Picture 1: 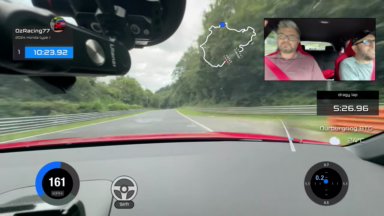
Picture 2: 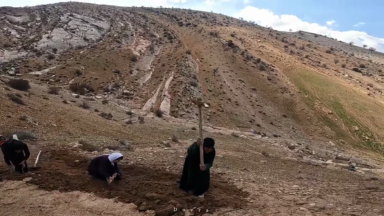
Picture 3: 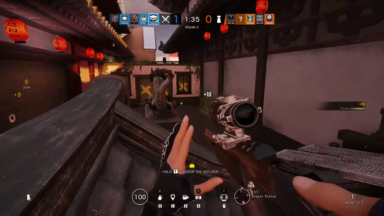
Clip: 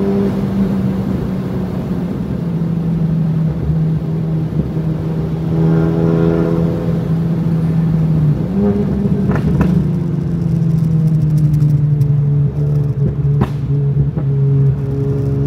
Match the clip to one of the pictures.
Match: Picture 1